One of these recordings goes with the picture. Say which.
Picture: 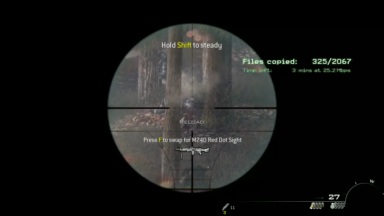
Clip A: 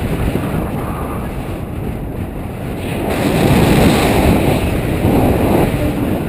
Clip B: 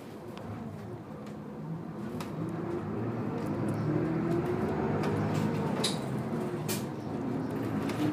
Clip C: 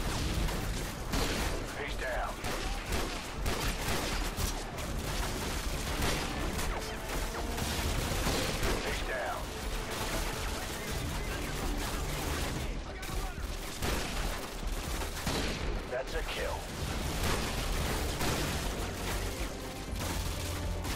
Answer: C